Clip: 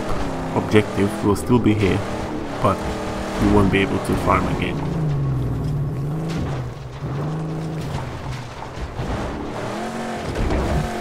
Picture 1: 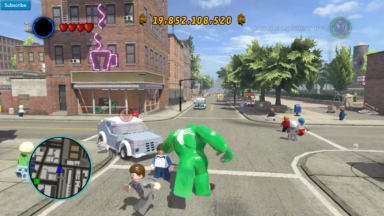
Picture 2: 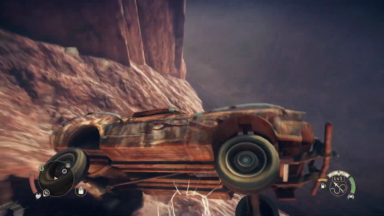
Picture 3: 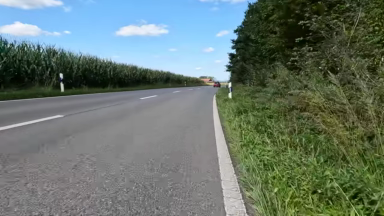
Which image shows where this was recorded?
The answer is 2